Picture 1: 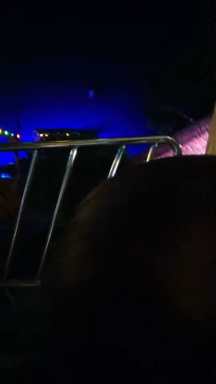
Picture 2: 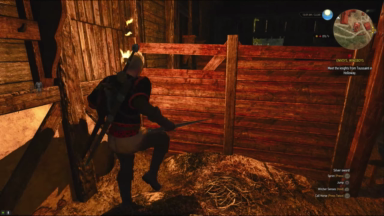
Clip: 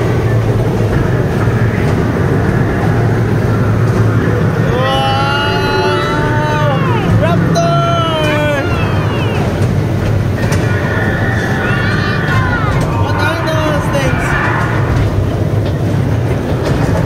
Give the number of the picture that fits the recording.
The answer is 1